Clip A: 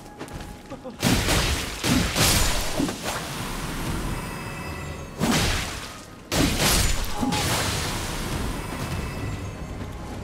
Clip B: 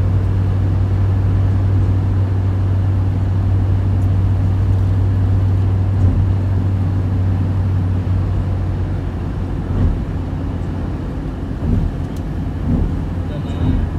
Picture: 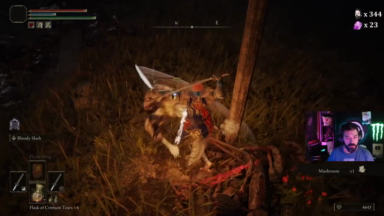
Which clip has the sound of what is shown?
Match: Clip A